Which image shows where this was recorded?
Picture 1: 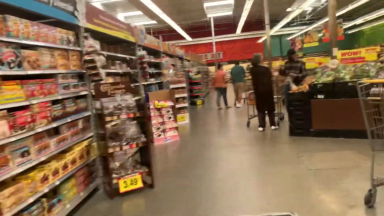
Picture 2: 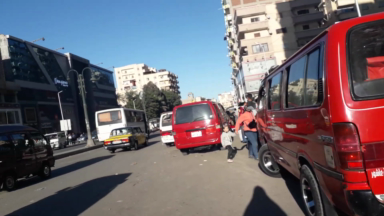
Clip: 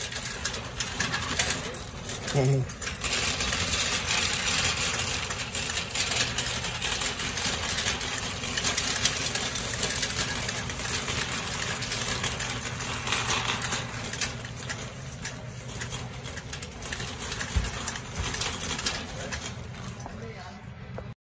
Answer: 1